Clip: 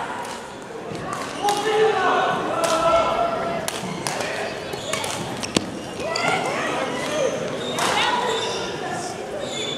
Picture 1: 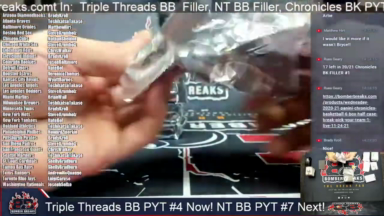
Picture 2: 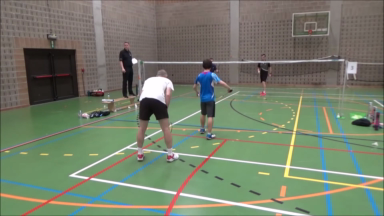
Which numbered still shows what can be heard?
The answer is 2